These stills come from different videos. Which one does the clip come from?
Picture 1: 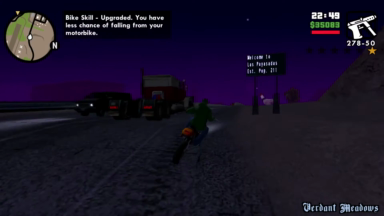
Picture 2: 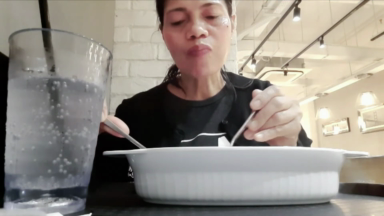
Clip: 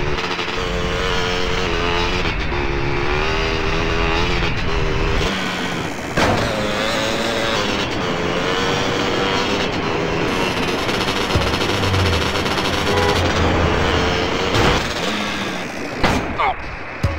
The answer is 1